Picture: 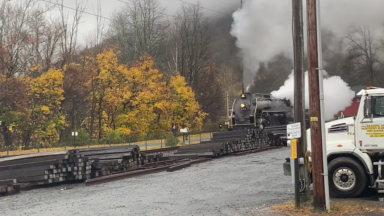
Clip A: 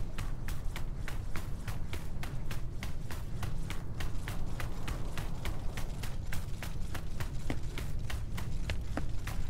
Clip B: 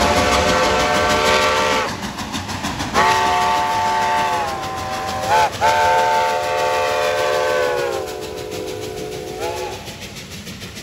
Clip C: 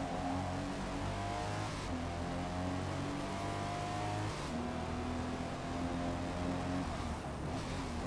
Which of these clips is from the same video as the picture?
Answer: B